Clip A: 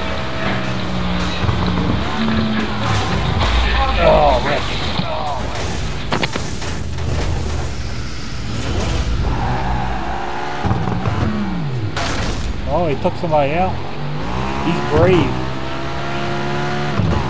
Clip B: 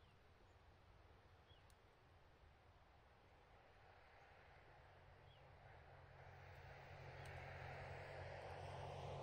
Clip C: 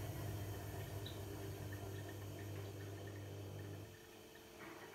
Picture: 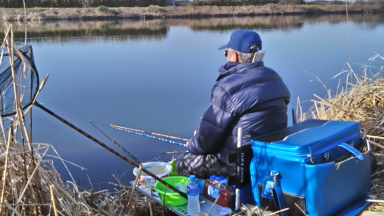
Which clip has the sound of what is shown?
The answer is B